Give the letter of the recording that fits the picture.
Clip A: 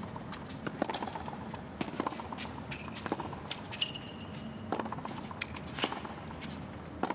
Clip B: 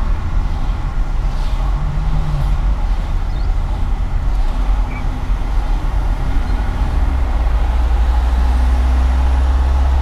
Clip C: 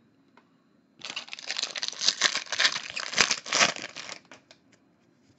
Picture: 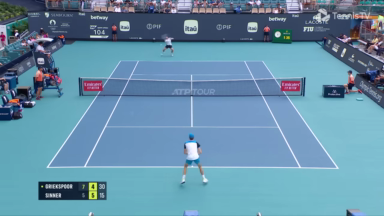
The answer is A